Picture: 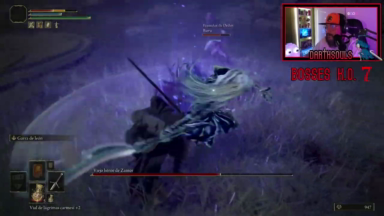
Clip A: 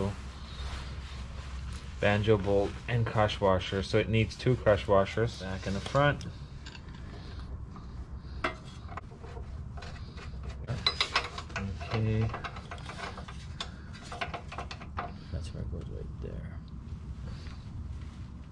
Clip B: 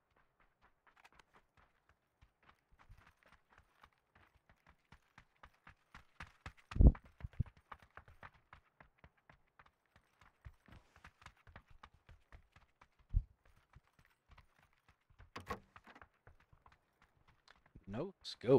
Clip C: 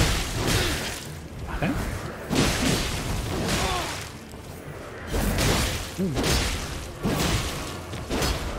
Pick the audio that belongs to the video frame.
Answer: C